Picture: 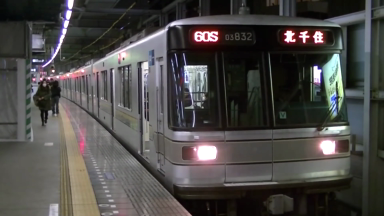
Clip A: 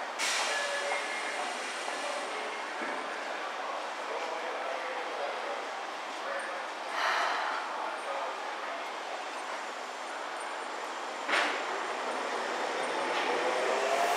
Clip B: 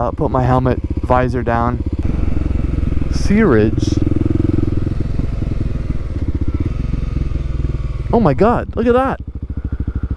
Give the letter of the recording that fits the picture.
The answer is A